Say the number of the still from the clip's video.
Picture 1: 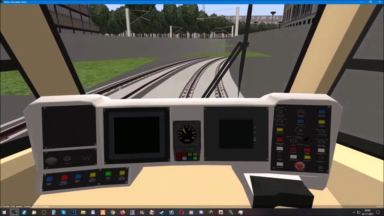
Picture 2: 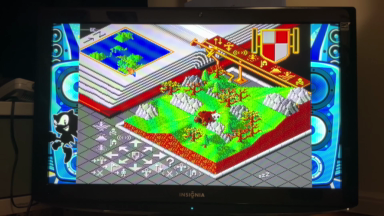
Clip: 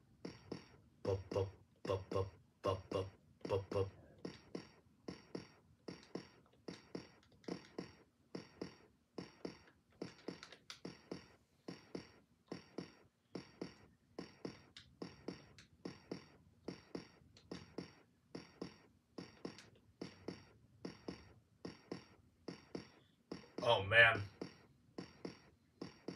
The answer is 2